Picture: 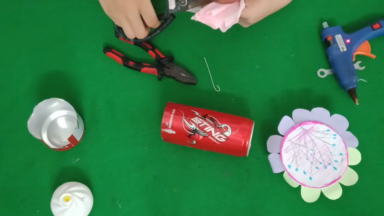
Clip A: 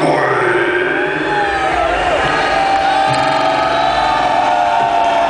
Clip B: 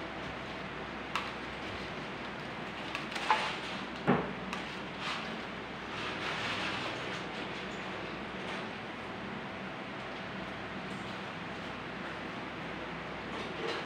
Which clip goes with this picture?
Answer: B